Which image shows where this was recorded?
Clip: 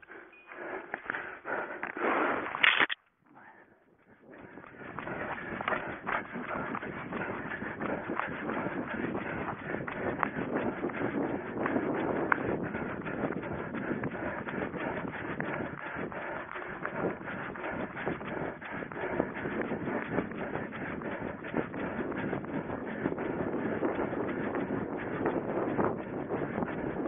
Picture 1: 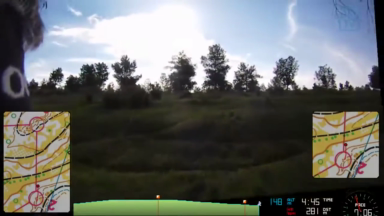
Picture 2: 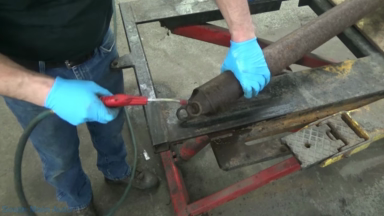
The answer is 1